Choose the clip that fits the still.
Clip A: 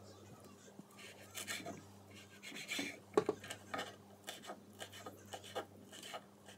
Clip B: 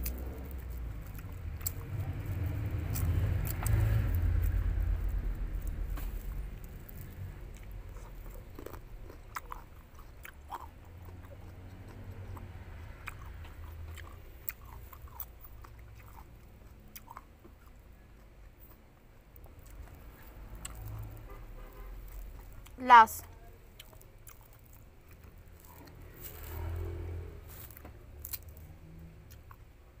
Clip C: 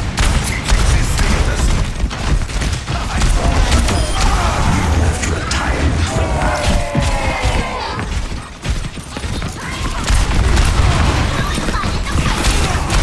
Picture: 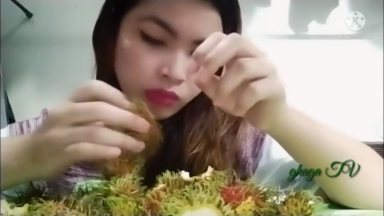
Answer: B